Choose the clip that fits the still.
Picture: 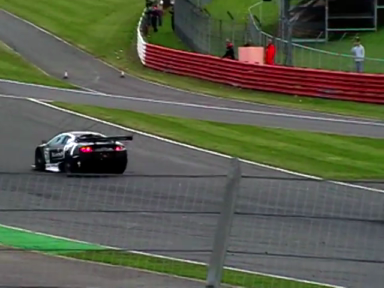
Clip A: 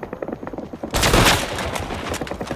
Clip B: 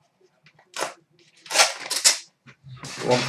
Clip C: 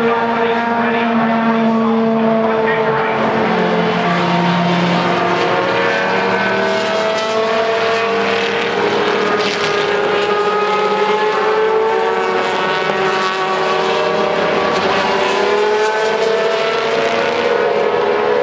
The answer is C